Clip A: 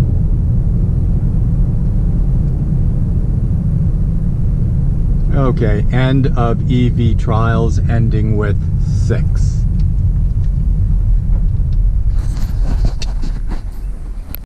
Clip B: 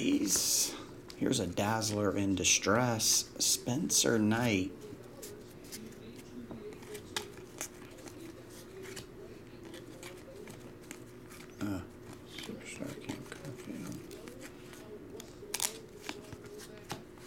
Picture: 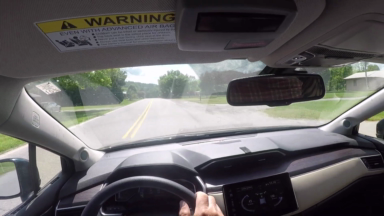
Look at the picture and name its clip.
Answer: A